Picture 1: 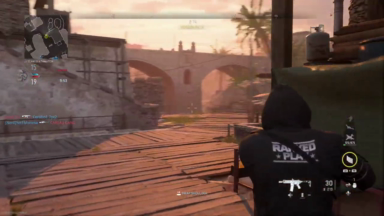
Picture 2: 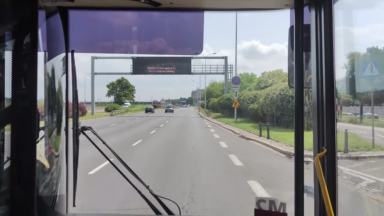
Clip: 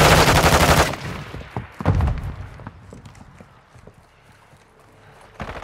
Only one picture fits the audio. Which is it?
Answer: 1